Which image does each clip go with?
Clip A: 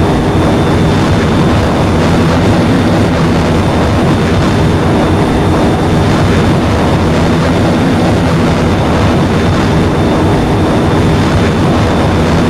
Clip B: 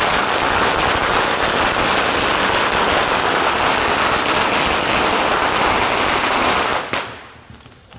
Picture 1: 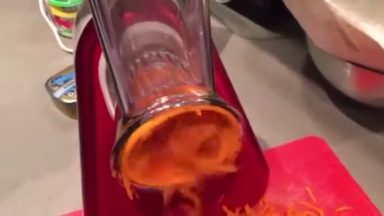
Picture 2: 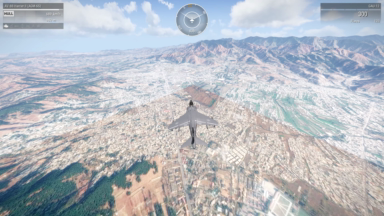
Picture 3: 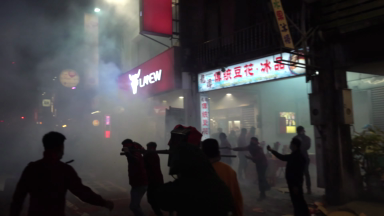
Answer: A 2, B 3